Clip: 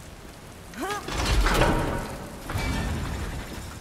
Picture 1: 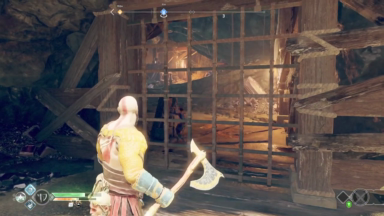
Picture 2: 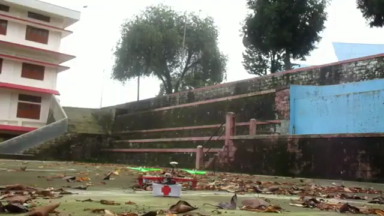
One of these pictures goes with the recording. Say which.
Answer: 1